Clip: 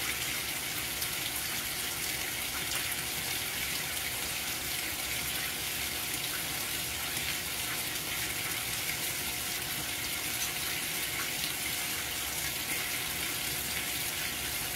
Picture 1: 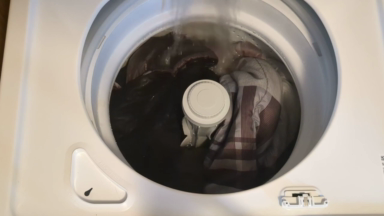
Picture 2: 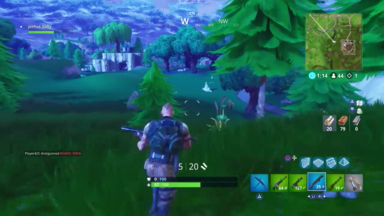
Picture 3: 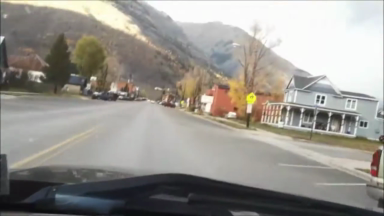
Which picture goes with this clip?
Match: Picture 1